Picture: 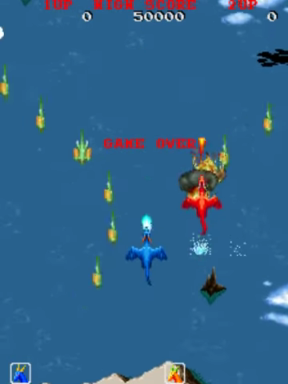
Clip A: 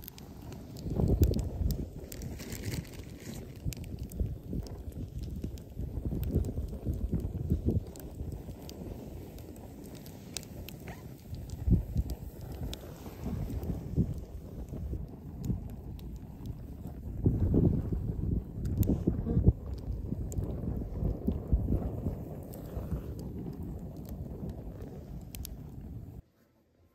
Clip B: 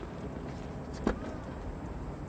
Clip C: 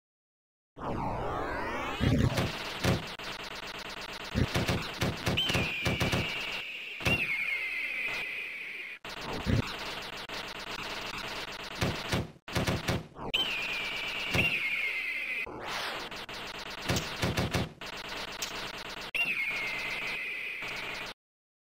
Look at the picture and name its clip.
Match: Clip C